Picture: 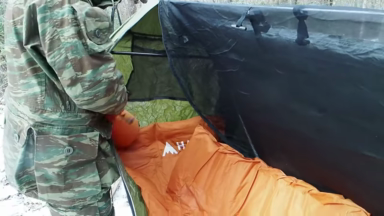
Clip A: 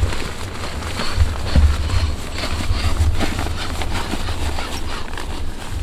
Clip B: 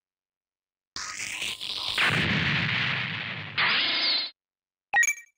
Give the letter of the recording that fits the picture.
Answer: A